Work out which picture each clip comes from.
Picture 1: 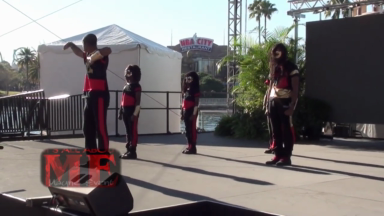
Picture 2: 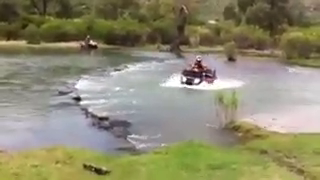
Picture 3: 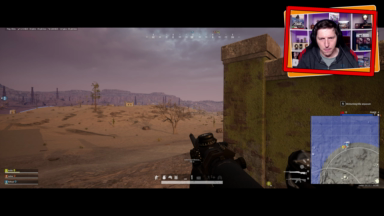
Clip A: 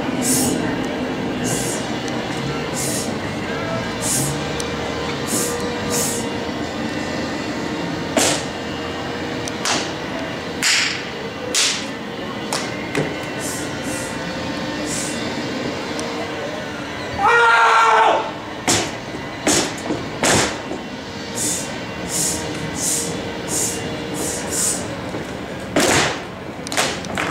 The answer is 1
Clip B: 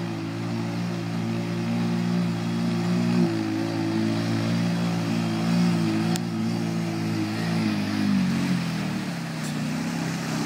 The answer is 2